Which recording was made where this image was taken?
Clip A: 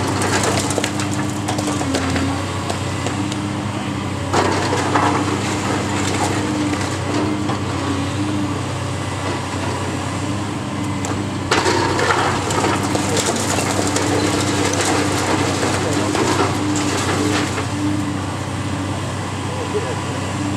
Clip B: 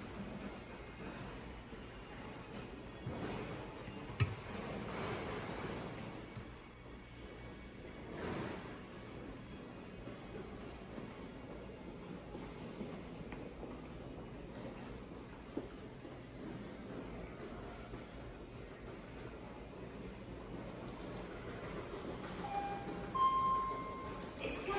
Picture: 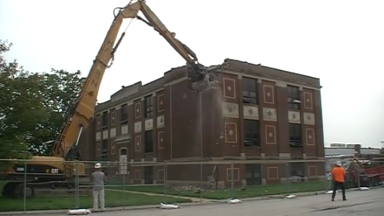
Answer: A